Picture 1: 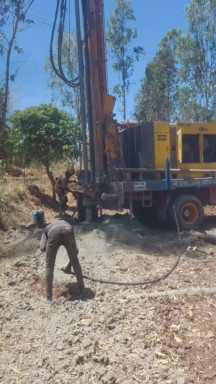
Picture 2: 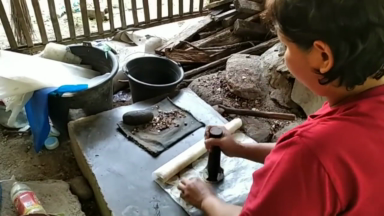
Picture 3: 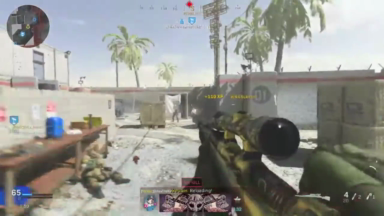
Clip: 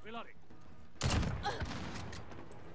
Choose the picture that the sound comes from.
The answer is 3